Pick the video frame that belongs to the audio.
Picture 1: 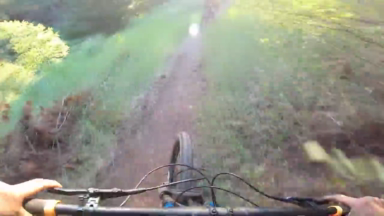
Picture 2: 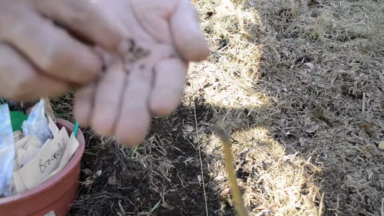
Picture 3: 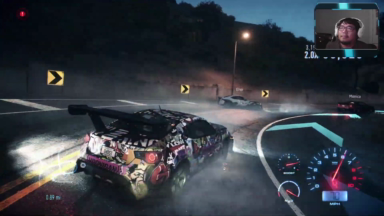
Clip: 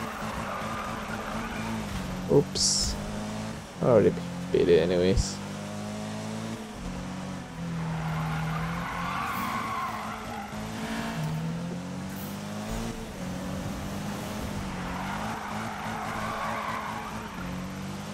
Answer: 3